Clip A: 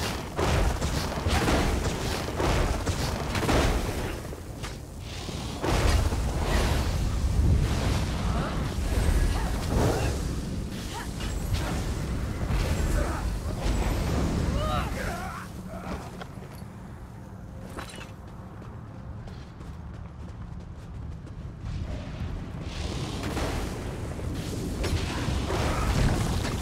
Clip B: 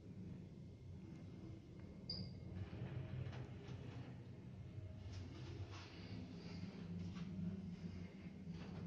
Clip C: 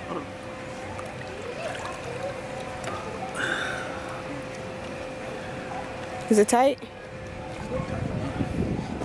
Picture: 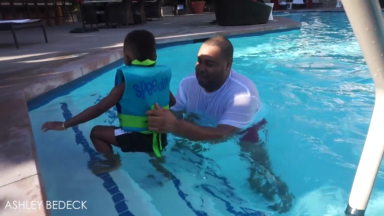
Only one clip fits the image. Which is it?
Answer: C